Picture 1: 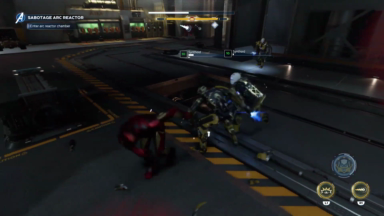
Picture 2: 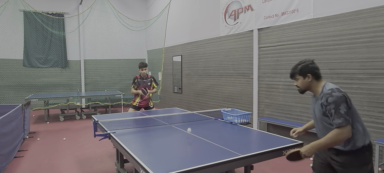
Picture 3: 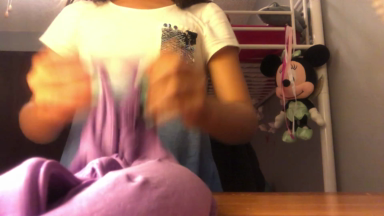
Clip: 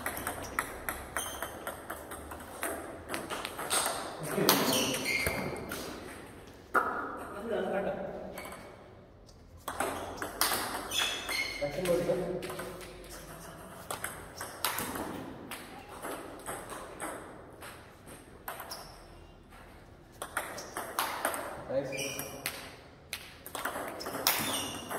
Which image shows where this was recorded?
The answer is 2